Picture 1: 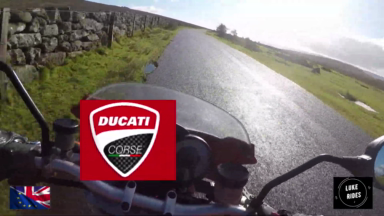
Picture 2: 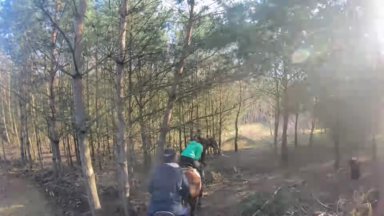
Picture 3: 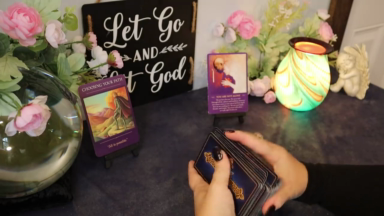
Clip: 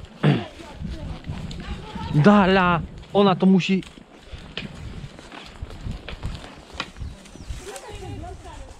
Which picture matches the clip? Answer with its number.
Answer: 2